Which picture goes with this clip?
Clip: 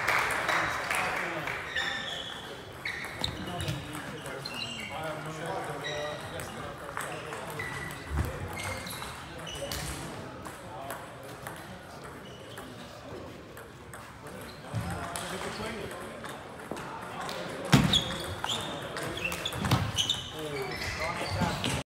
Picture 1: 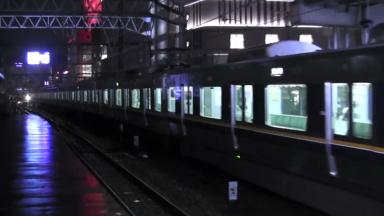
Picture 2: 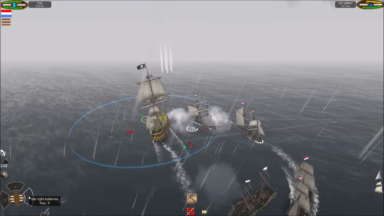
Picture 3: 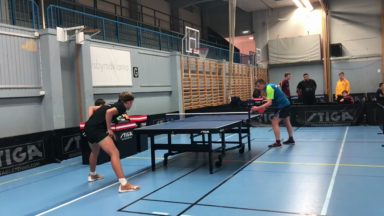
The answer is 3